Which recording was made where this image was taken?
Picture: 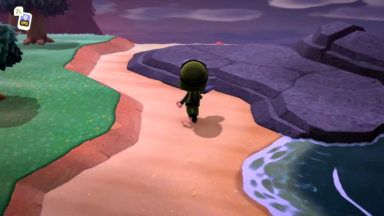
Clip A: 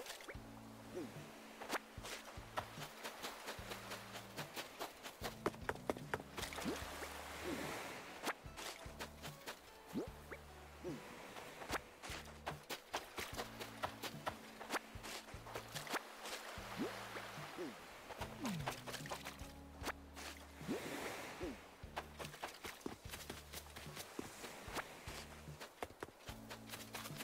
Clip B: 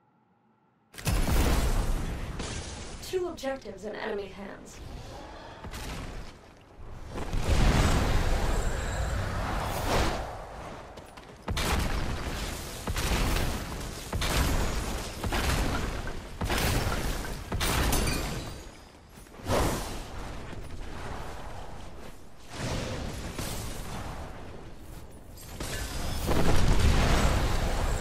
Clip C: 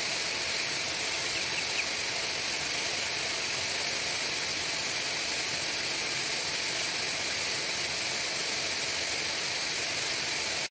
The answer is A